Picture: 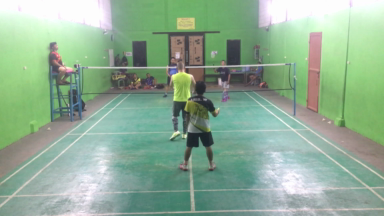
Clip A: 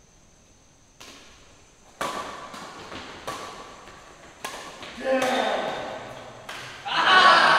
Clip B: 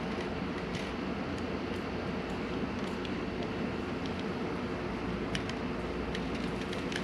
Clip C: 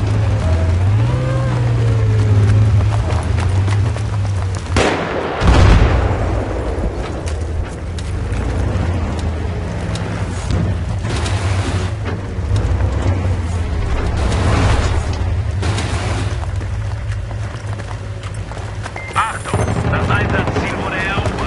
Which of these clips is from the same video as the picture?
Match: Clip A